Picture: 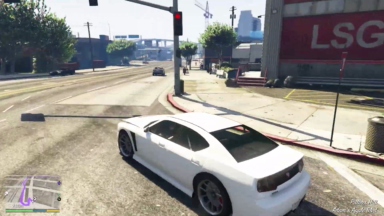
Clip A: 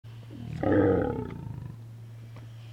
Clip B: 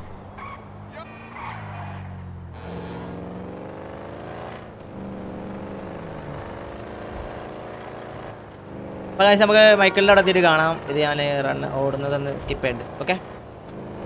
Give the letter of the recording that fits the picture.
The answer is B